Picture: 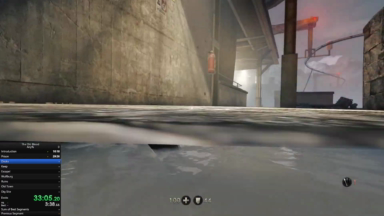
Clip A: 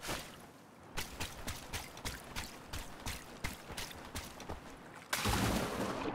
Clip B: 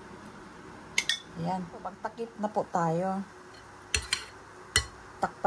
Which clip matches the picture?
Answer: A